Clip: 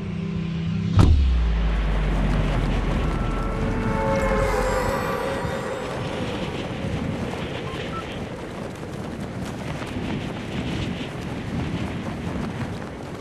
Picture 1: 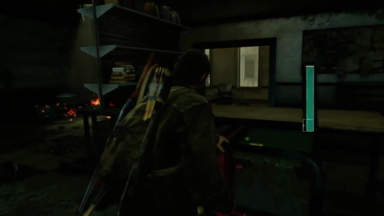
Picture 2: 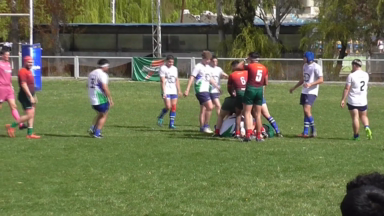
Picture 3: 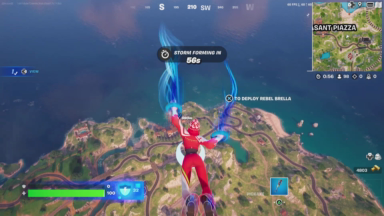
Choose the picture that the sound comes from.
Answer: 3